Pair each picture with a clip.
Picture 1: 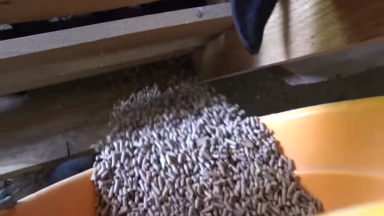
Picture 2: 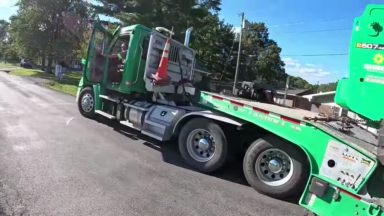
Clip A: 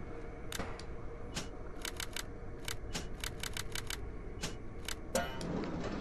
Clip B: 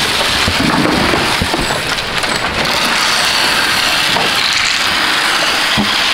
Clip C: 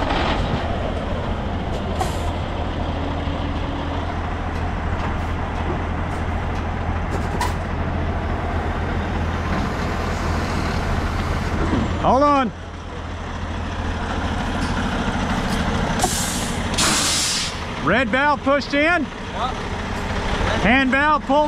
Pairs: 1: B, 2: C